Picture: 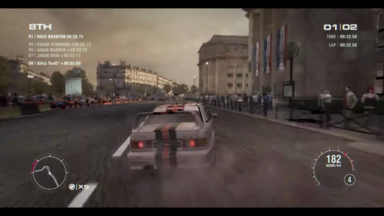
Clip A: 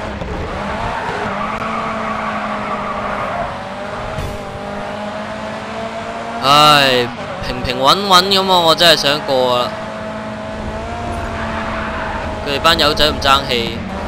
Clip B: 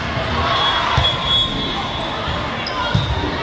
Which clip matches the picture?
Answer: A